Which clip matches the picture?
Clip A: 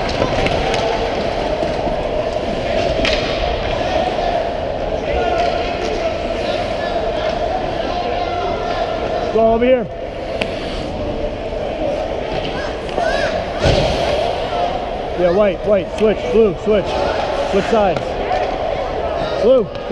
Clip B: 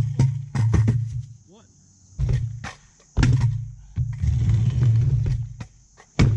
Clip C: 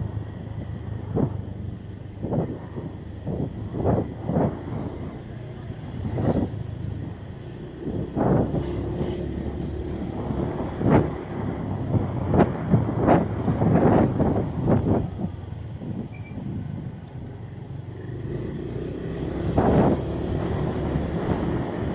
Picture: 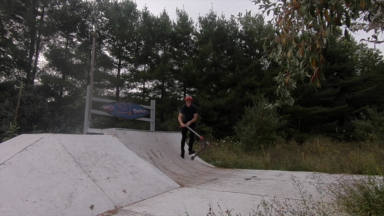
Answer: B